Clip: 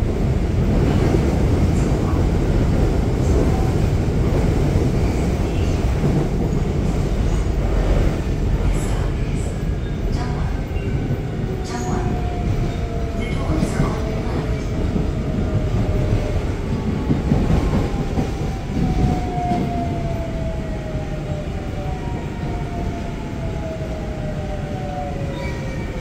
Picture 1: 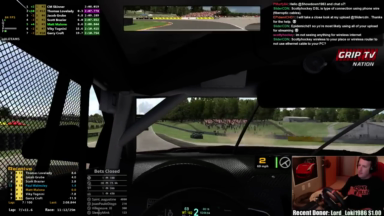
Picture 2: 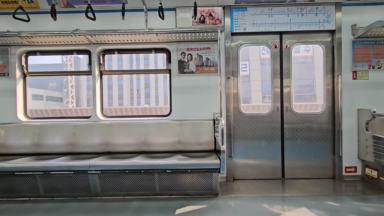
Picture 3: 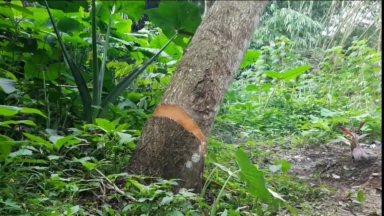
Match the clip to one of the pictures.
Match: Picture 2